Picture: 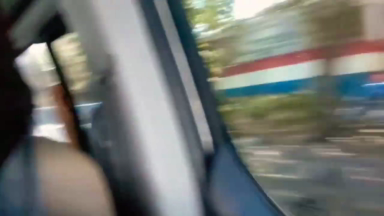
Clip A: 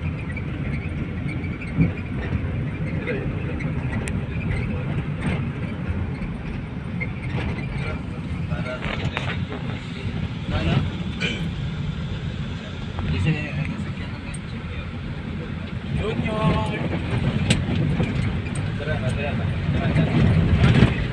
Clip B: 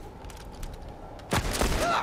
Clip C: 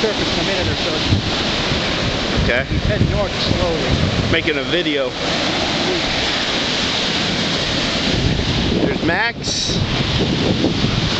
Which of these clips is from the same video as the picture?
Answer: A